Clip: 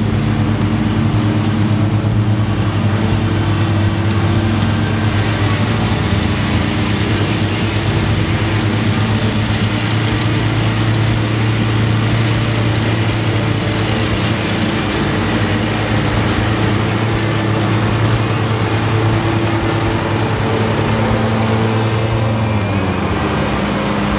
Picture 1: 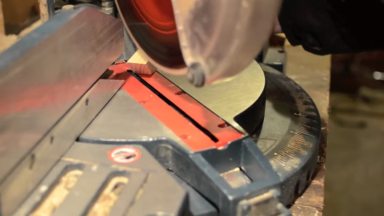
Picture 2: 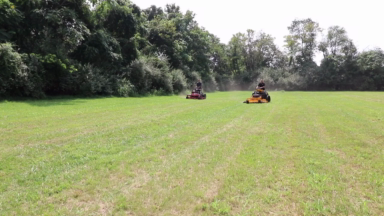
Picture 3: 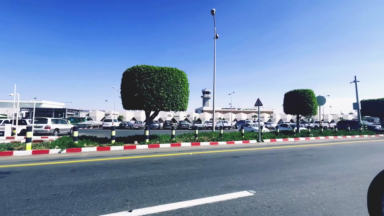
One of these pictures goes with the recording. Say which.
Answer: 2